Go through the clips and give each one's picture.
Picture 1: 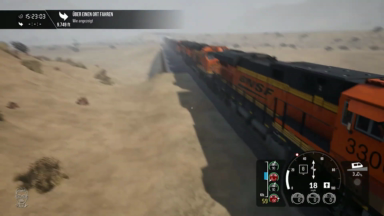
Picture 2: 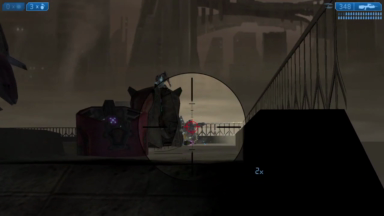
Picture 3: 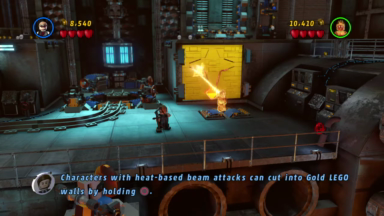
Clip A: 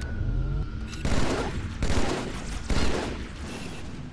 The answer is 2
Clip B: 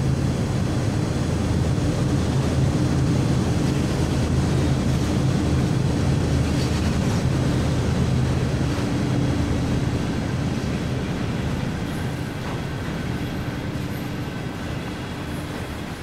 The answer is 1